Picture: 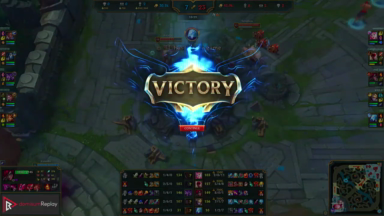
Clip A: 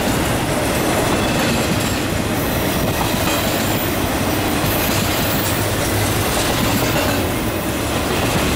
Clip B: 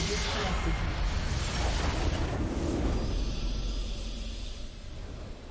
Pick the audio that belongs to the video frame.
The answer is B